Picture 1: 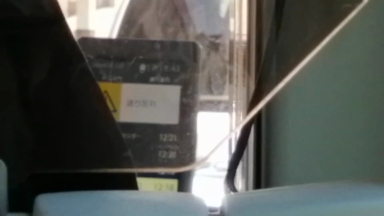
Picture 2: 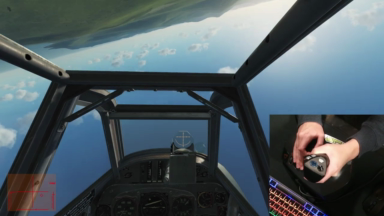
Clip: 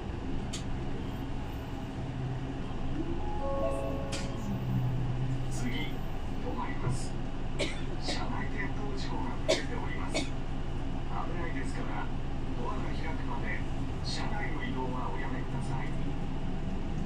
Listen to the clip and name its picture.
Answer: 1